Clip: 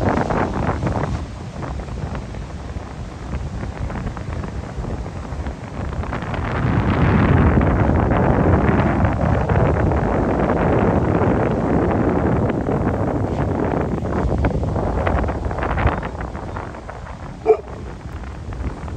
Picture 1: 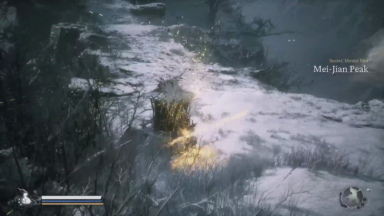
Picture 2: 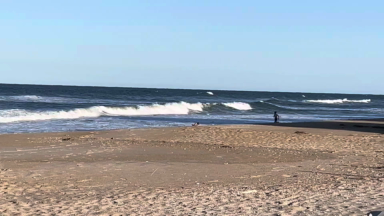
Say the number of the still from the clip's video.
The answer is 2